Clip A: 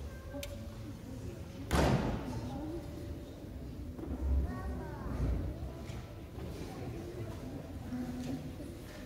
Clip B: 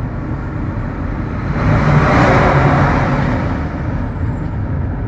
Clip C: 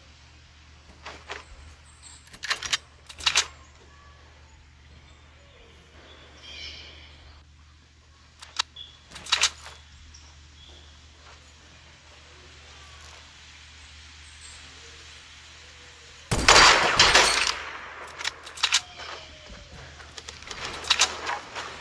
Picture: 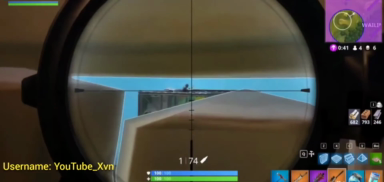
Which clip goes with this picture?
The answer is C